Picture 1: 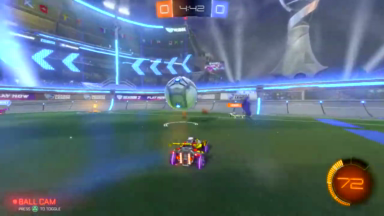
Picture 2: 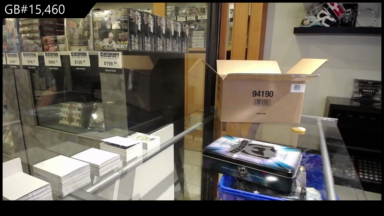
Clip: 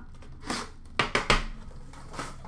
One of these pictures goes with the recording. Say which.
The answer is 2